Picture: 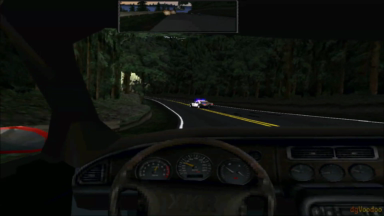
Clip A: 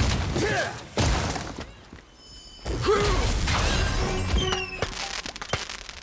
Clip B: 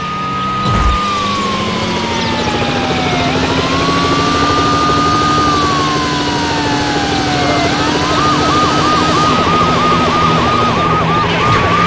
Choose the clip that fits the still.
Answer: B